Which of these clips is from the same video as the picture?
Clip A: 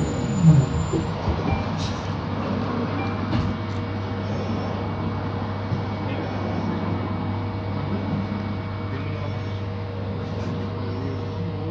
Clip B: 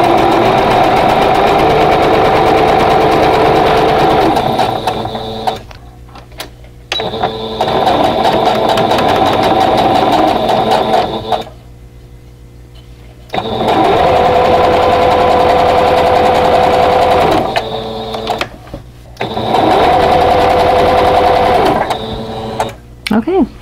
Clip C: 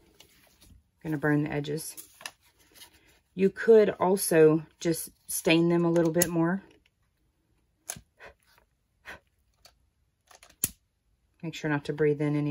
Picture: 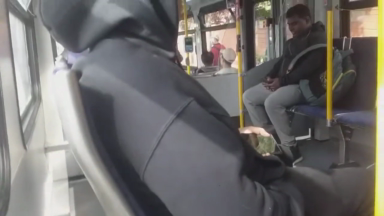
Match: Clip A